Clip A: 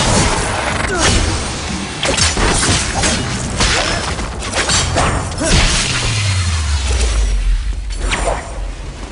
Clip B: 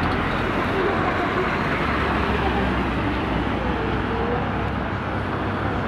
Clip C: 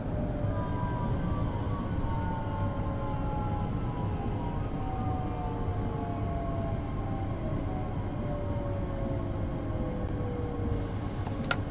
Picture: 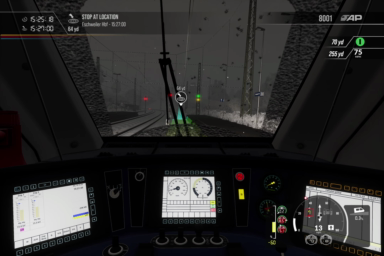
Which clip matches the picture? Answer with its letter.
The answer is C